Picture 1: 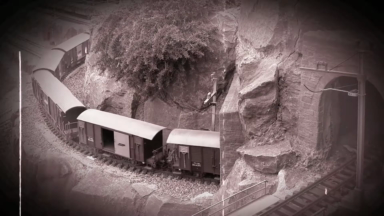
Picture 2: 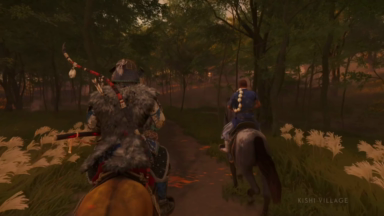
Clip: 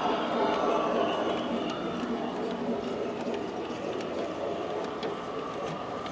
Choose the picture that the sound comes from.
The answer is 1